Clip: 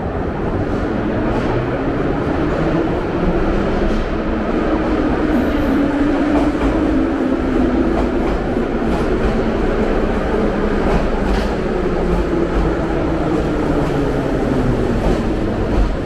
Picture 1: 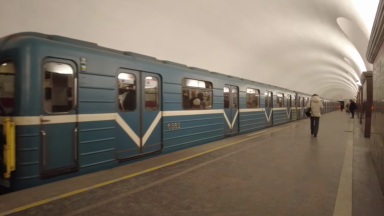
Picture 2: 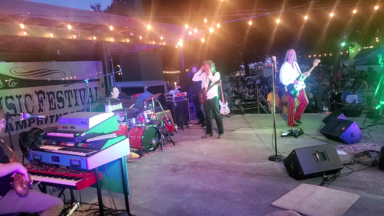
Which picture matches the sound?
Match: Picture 1